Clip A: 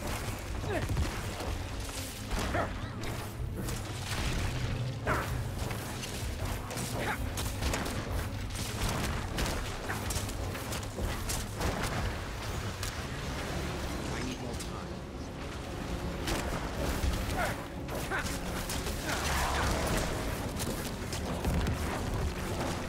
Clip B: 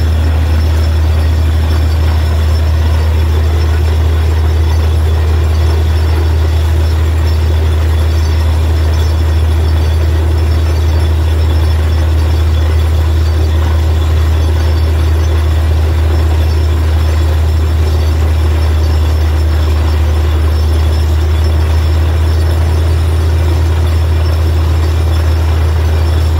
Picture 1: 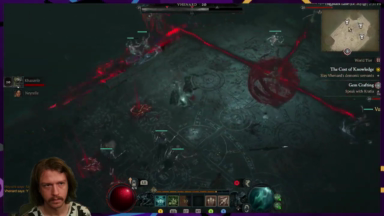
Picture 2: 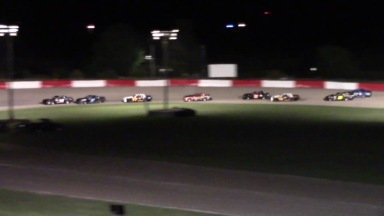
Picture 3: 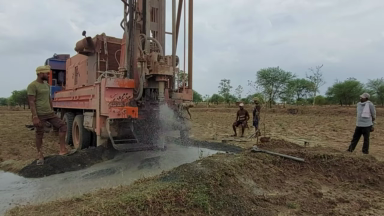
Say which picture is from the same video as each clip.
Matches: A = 1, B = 3